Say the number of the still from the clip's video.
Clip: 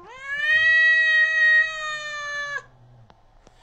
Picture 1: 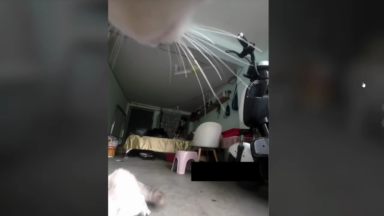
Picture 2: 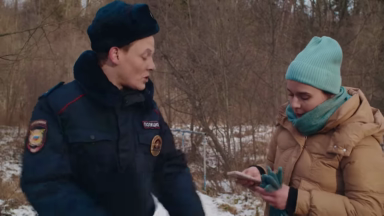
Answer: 1